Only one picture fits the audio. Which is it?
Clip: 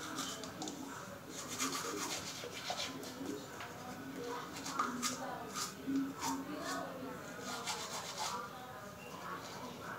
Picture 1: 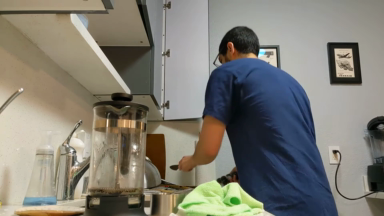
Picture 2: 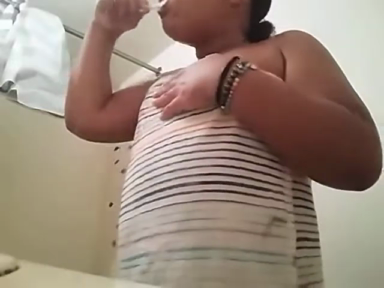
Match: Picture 2